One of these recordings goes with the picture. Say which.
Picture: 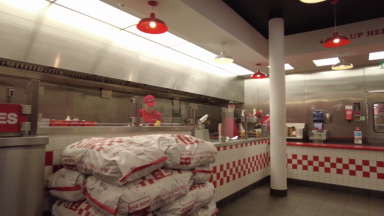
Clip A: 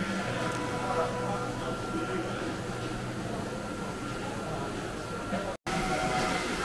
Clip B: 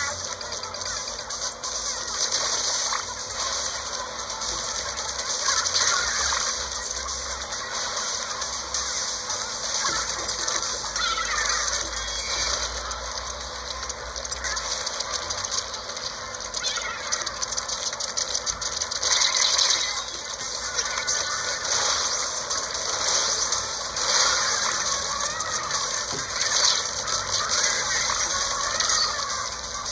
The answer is A